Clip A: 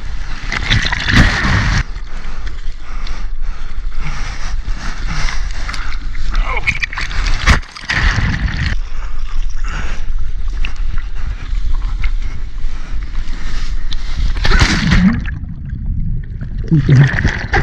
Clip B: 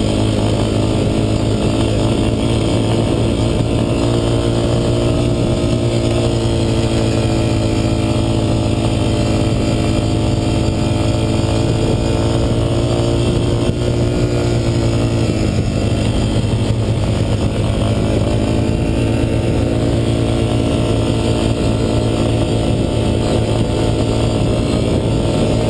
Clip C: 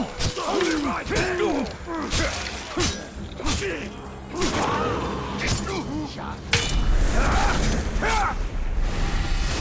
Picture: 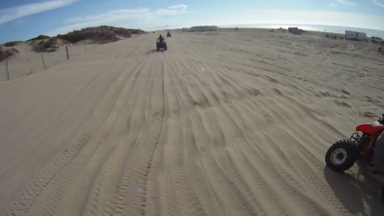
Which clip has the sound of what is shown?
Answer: B